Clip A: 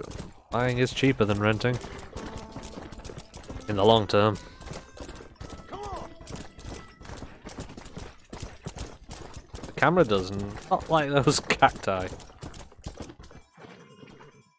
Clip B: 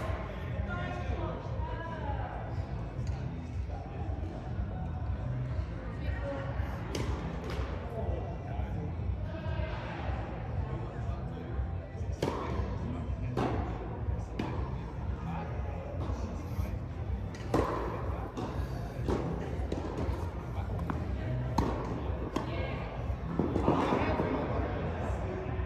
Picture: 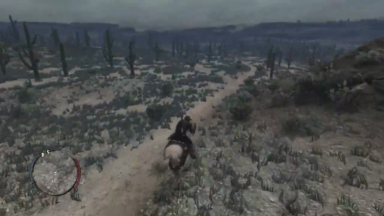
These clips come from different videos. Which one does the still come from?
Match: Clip A